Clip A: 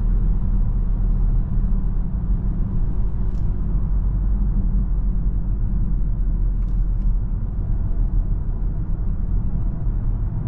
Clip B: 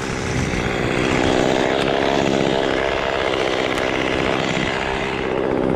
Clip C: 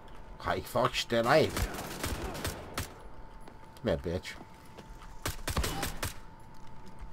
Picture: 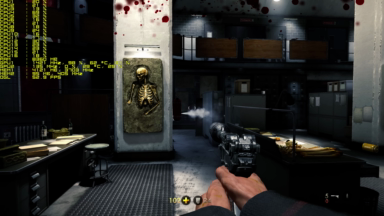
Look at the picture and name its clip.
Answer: C